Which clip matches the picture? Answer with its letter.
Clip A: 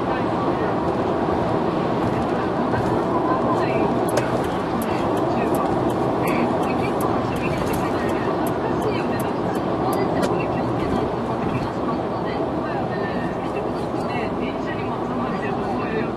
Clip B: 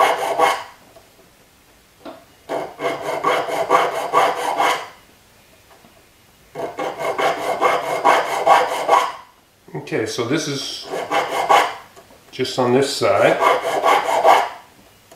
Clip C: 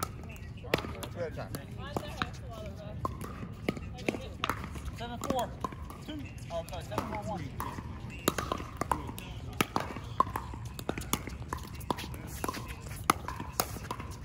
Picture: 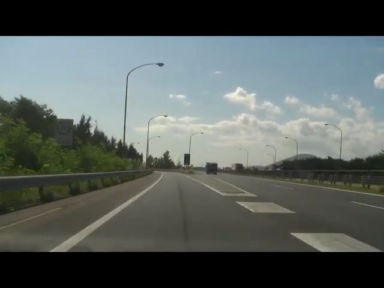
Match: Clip A